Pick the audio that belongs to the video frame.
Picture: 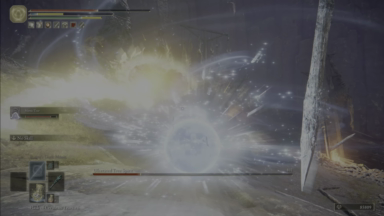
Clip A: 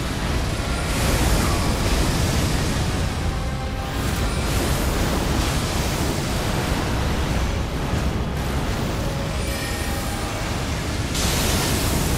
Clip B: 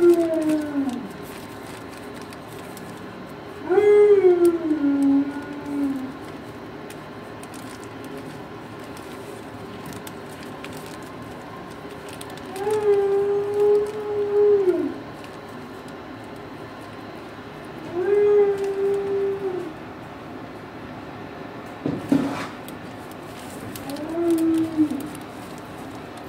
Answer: A